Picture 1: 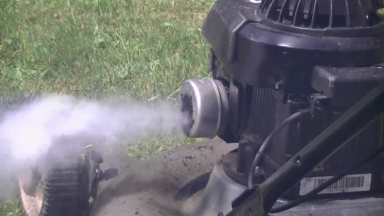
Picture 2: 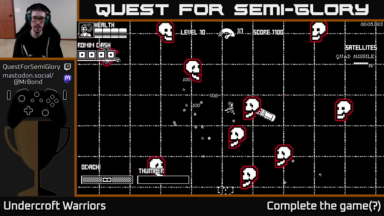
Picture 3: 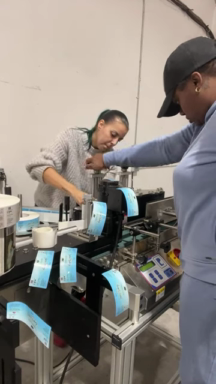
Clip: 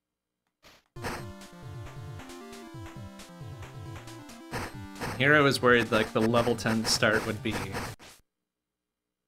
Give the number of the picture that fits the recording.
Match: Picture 2